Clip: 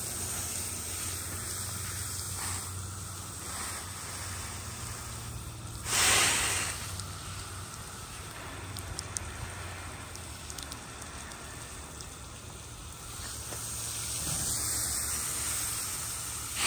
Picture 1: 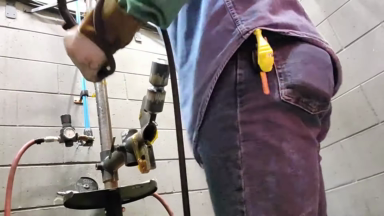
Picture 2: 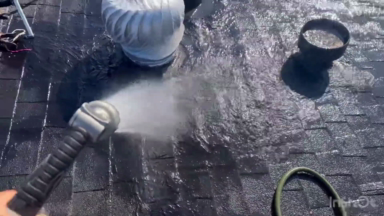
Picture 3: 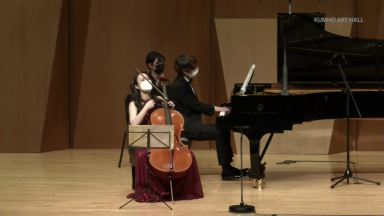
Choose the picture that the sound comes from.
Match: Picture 2